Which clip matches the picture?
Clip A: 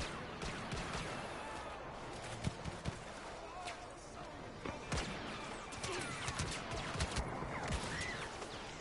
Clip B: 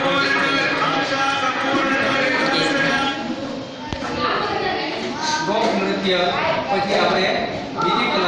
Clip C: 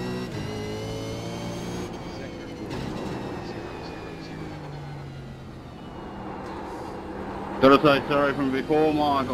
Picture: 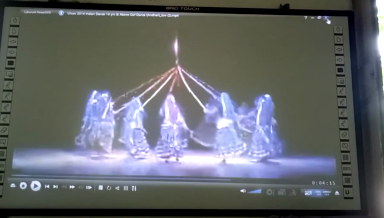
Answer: B